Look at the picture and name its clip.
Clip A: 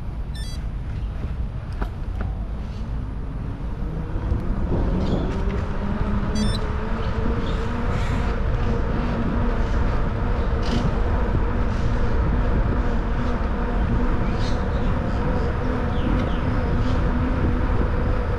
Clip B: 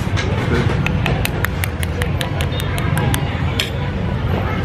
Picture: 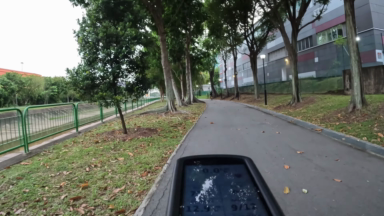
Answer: A